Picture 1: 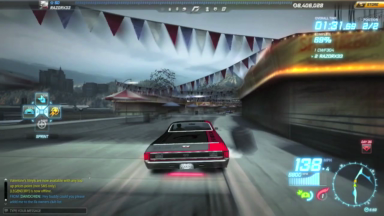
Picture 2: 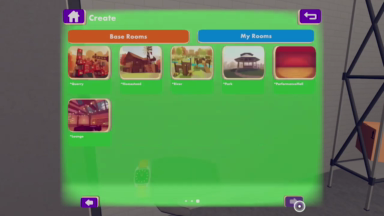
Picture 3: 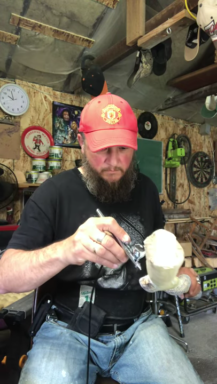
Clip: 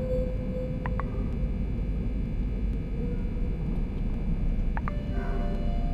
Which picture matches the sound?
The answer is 2